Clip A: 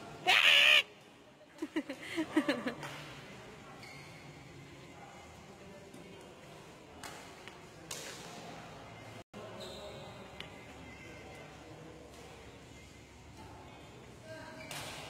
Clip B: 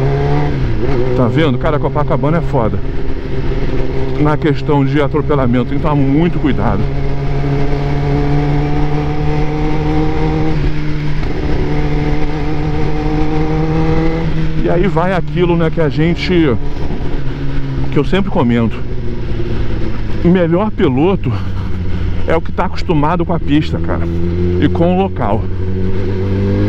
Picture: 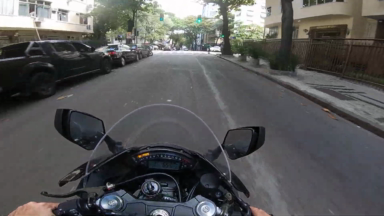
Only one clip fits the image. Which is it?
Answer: B